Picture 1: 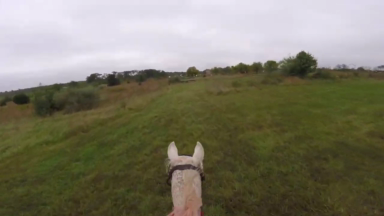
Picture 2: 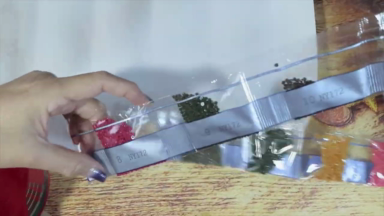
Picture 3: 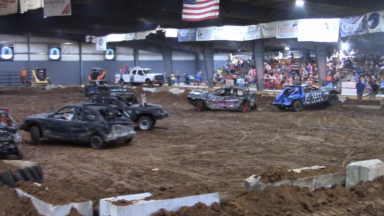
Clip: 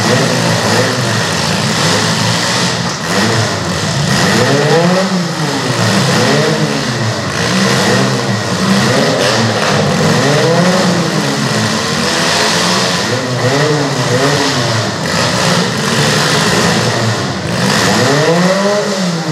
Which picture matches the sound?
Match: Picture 3